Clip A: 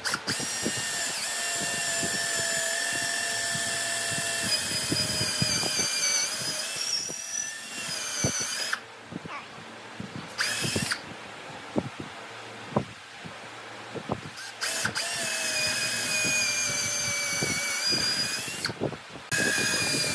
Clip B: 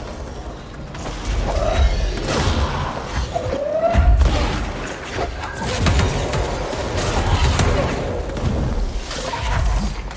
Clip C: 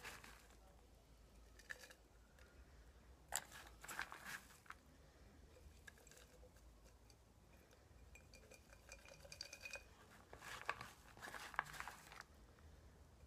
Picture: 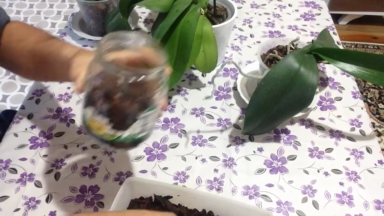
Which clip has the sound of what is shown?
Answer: C